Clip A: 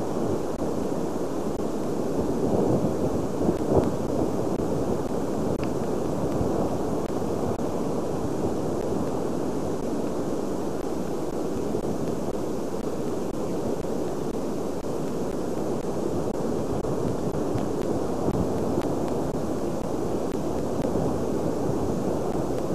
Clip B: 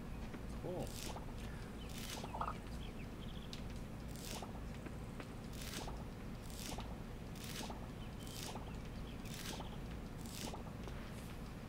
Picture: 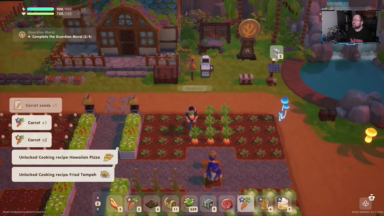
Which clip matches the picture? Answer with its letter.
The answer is B